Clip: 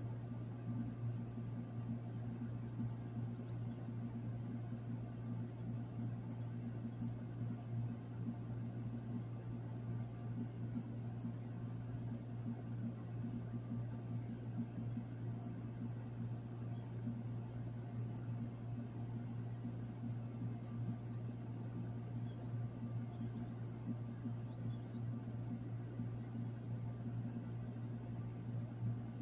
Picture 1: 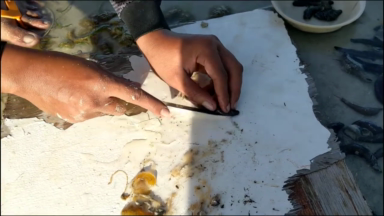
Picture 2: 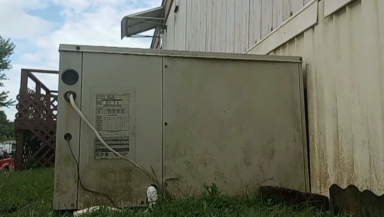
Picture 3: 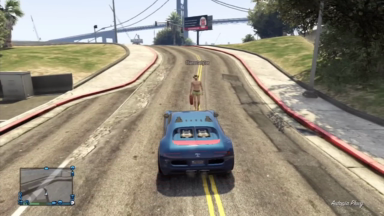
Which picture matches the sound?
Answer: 2